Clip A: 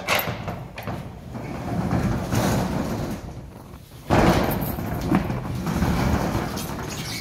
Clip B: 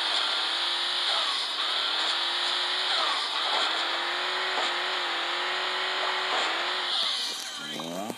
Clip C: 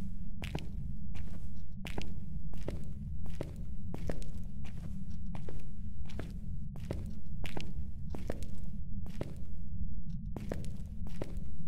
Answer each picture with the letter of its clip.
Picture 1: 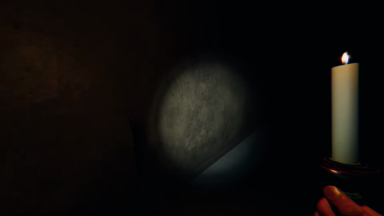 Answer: C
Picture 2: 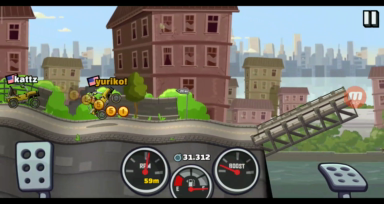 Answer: B